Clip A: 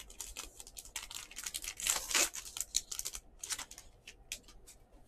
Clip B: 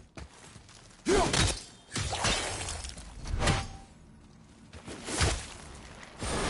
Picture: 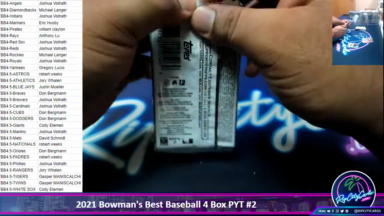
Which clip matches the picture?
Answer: A